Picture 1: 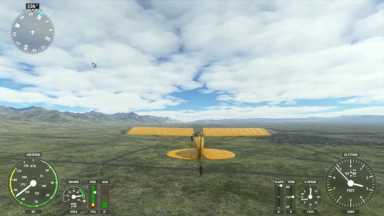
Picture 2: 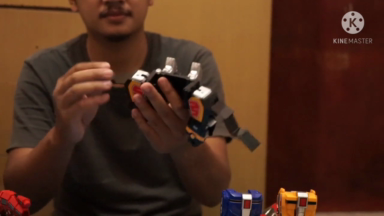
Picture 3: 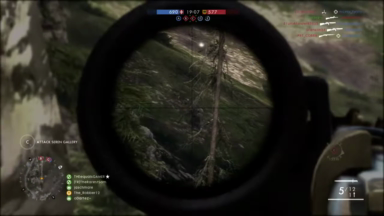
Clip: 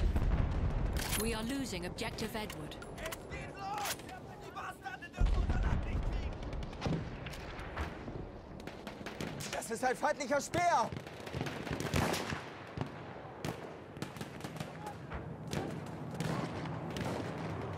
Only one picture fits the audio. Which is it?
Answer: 3